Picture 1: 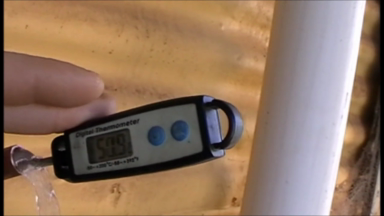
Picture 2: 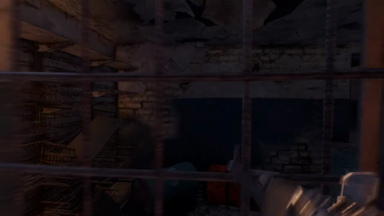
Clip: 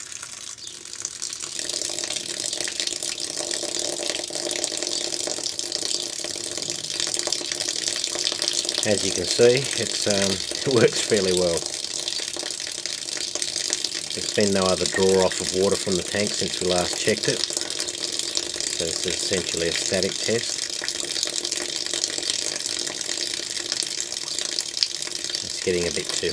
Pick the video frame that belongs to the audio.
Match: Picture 1